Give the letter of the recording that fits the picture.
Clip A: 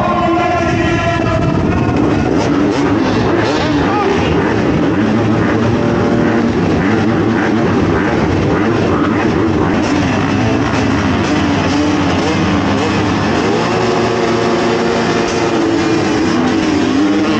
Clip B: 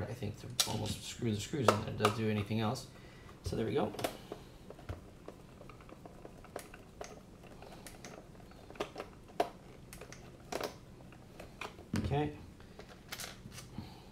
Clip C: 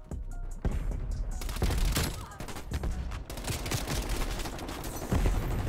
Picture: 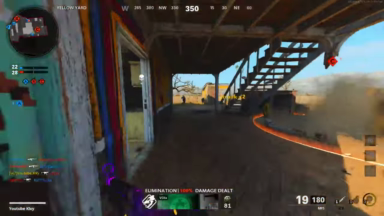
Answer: C